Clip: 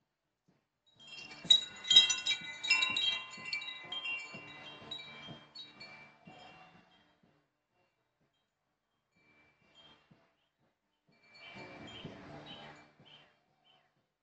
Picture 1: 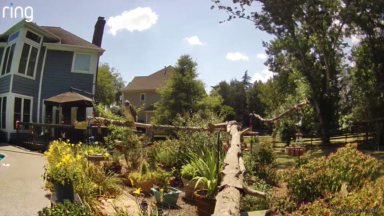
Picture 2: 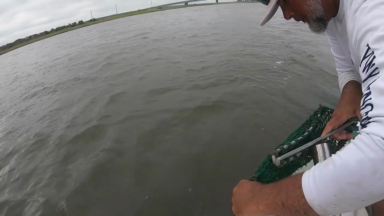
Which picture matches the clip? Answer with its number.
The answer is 1